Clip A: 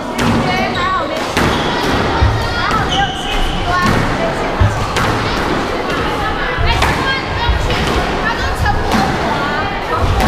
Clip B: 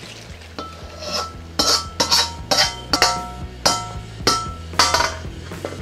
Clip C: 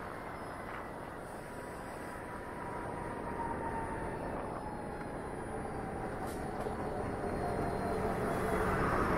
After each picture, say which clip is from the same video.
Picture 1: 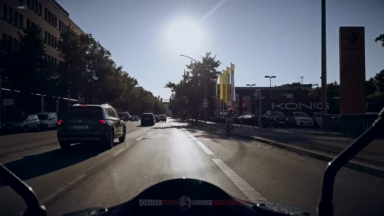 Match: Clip C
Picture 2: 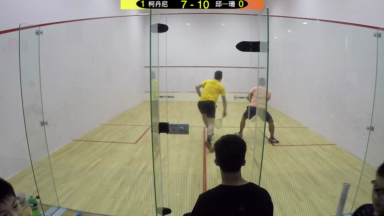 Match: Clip A